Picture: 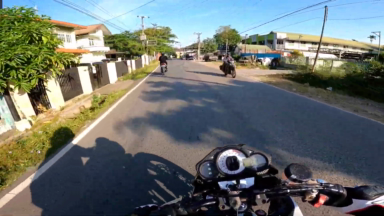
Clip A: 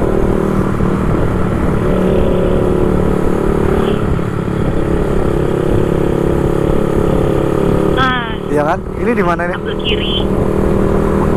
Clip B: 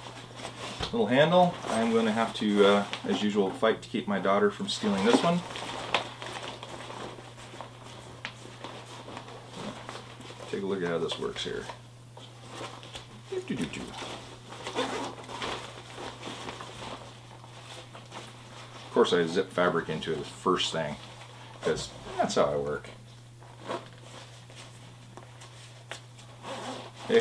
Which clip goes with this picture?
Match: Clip A